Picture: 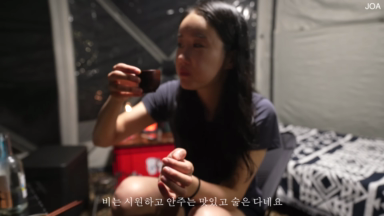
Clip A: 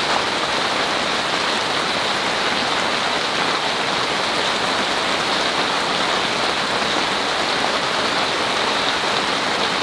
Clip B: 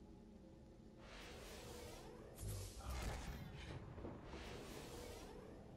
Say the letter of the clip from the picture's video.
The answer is A